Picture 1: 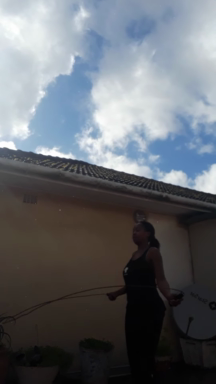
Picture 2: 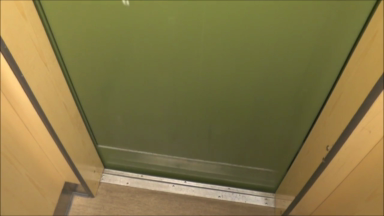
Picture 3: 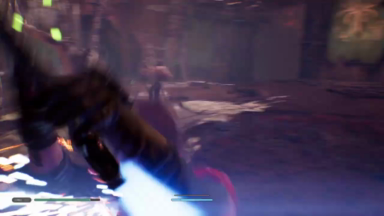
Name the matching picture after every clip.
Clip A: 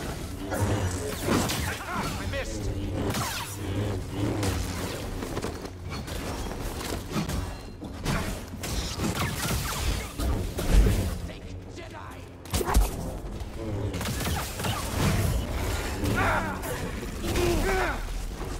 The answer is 3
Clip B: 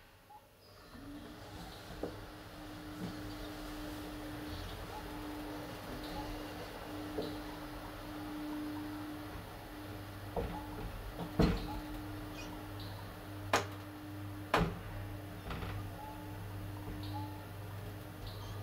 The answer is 2